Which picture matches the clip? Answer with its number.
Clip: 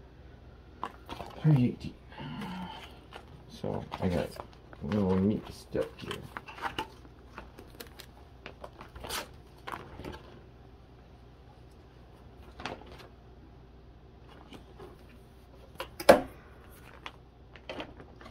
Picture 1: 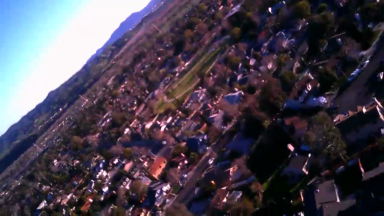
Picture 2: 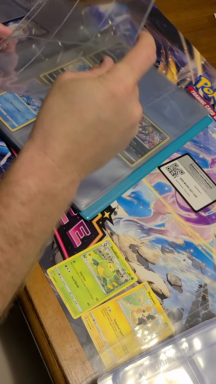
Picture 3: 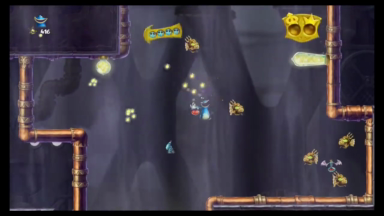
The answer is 2